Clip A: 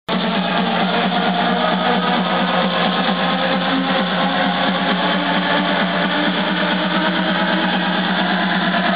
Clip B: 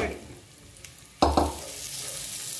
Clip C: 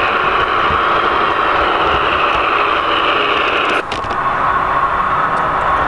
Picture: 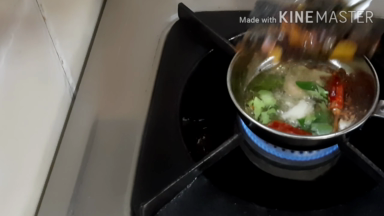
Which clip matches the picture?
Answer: B